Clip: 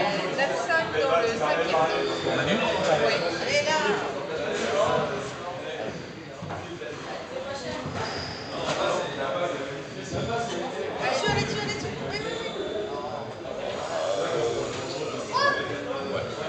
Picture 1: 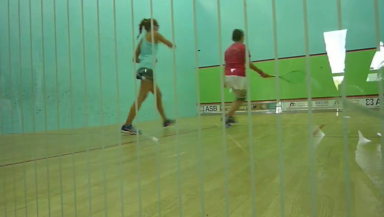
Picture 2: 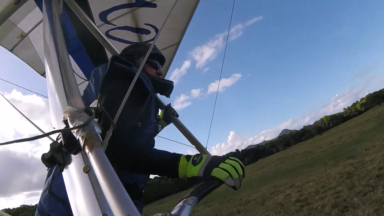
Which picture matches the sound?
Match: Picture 1